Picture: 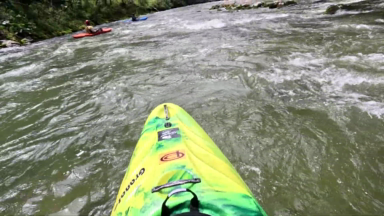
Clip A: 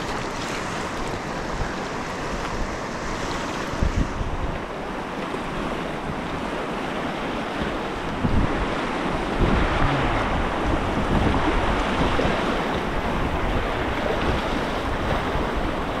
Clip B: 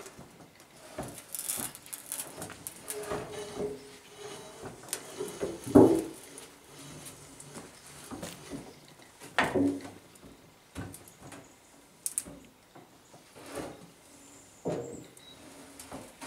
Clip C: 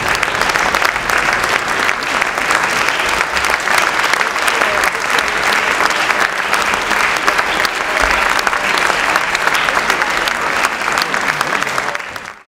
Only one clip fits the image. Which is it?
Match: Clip A